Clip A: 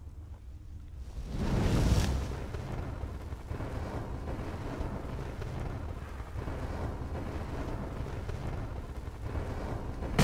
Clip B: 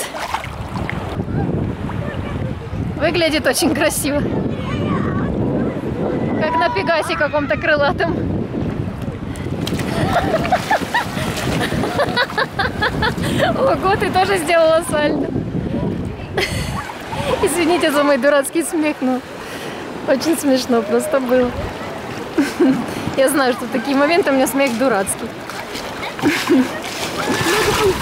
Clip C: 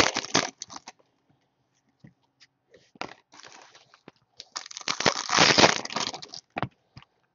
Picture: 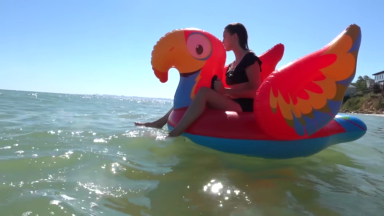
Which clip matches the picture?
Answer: B